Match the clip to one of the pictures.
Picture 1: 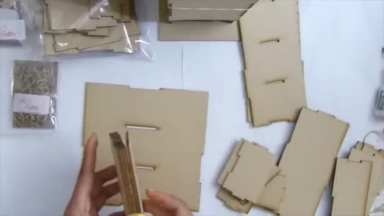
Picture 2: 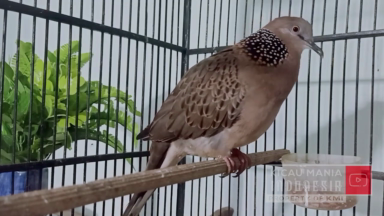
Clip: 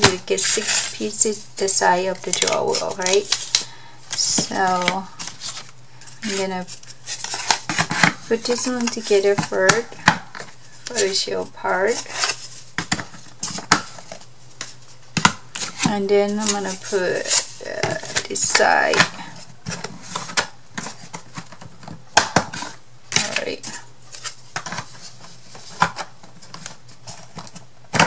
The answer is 1